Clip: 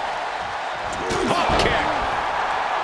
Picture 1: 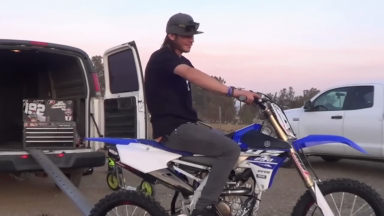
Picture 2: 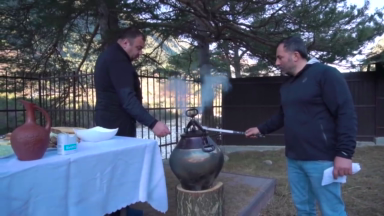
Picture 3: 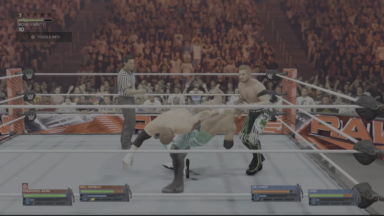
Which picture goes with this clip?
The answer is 3